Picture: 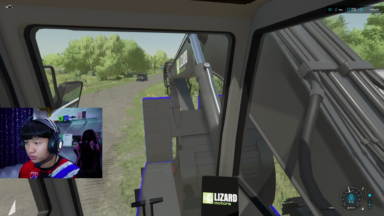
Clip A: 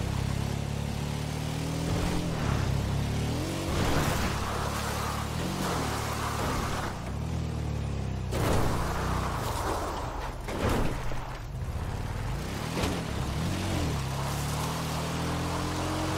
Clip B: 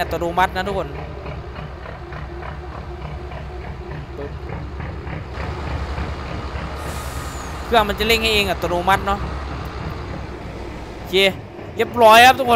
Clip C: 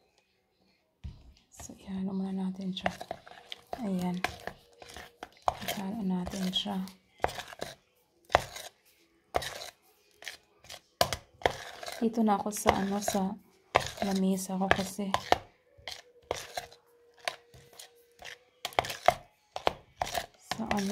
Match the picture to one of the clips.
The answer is B